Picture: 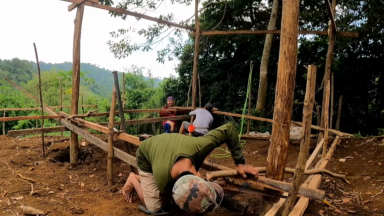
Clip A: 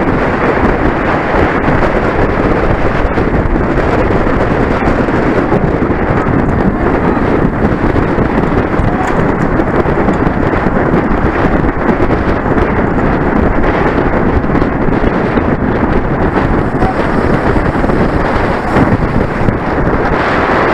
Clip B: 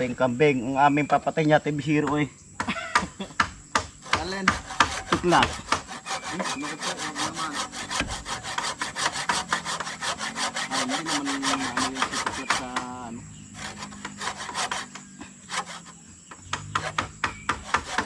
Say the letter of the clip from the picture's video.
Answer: B